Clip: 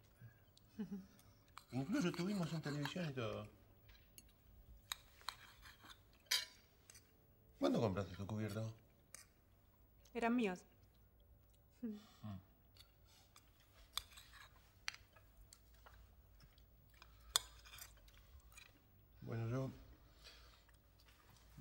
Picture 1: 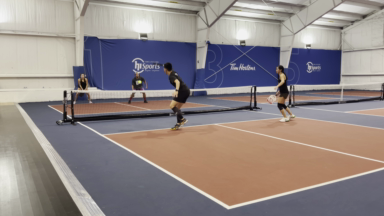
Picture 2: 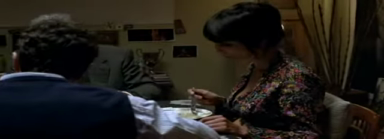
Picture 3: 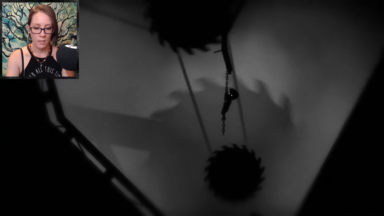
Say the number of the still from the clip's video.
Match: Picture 2